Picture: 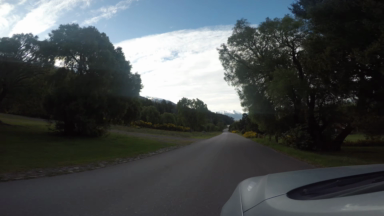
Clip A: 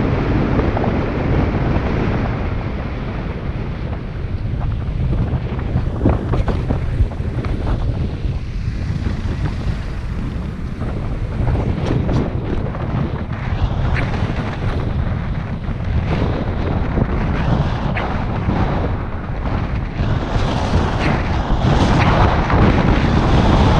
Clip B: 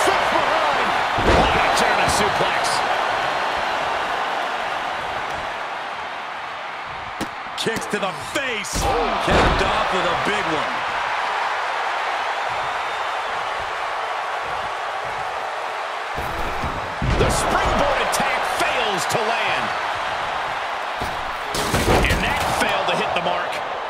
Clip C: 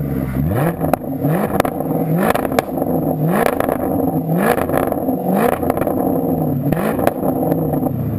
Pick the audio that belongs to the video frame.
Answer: A